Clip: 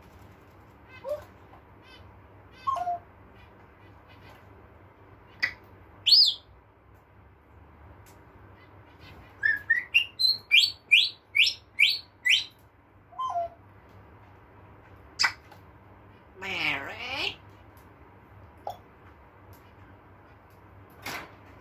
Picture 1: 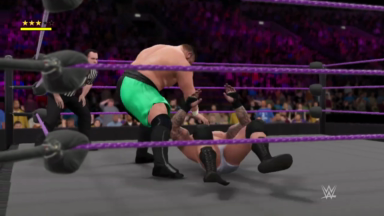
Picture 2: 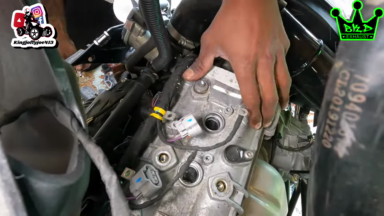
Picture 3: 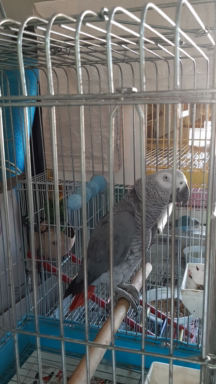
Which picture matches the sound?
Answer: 3